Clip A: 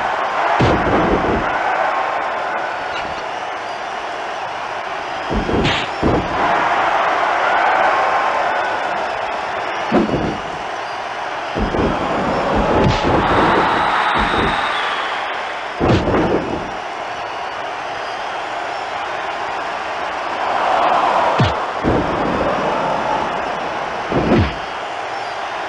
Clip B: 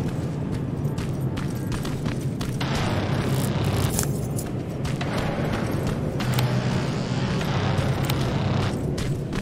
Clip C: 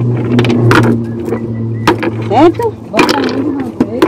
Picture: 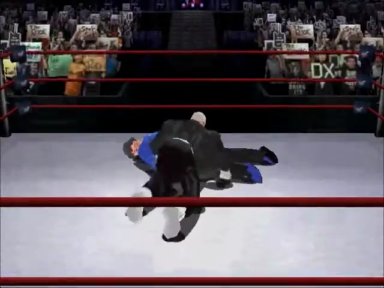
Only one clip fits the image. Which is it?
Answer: A